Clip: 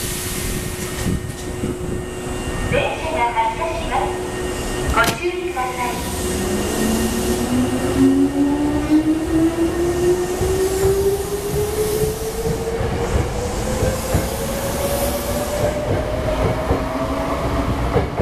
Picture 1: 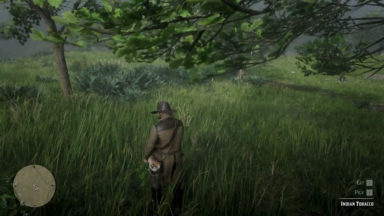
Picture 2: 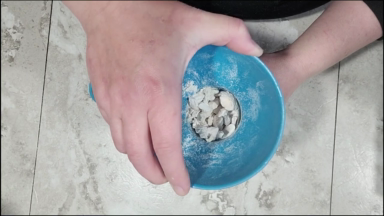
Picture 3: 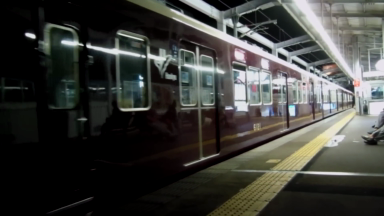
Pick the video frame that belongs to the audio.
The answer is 3